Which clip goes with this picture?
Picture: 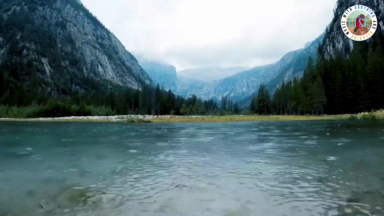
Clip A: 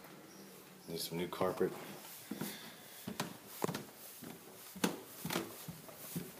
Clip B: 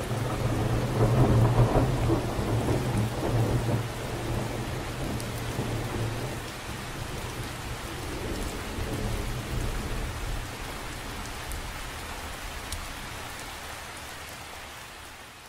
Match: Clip B